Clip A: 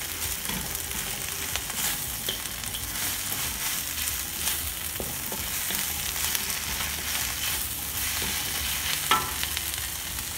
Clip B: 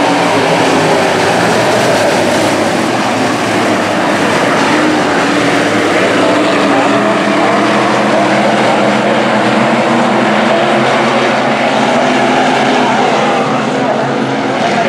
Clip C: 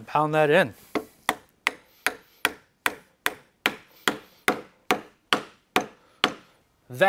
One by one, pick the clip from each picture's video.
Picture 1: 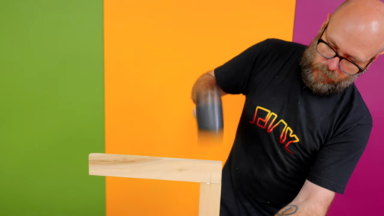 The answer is C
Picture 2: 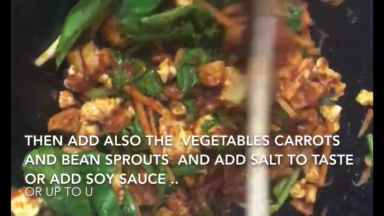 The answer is A